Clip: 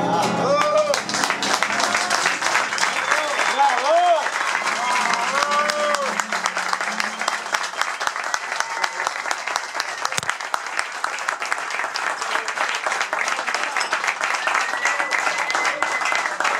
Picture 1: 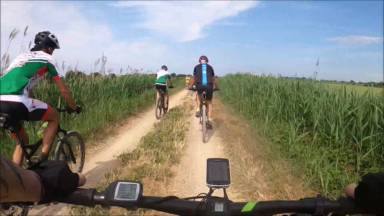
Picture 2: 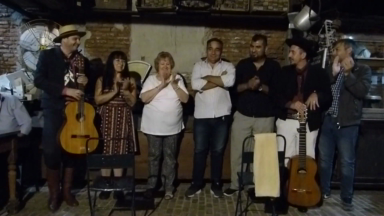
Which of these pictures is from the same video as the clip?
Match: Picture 2